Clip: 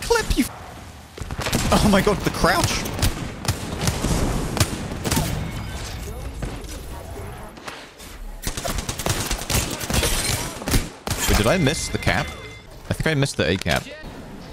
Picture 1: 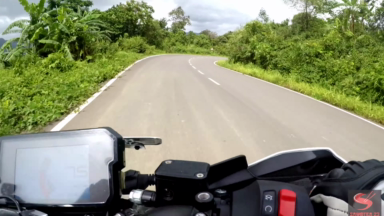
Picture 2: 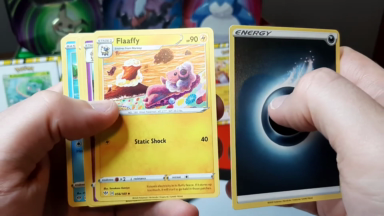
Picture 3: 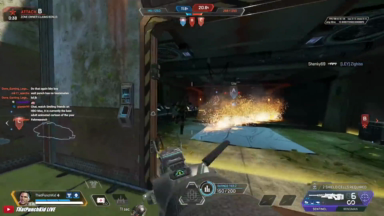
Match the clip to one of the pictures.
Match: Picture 3